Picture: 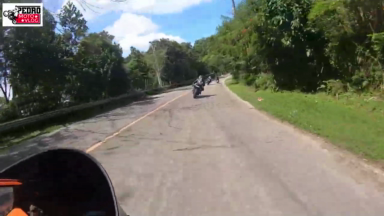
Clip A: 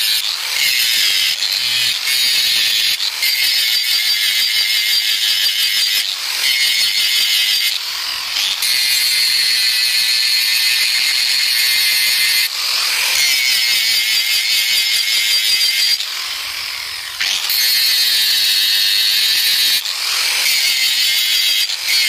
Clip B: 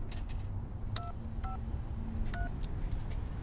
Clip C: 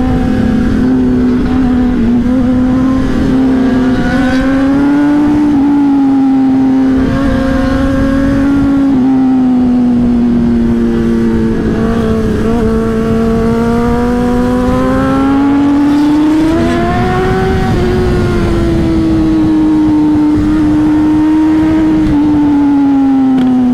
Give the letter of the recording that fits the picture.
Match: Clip C